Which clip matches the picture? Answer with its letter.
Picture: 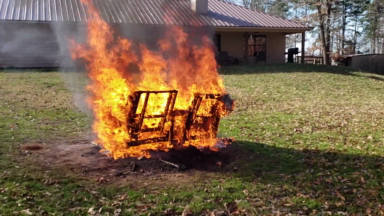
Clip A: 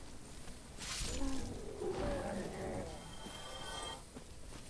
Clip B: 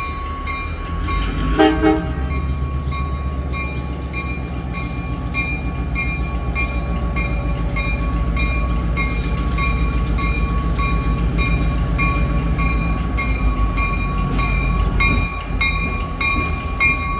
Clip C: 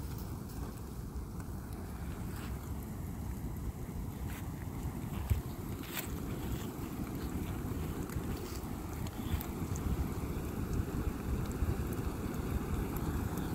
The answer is C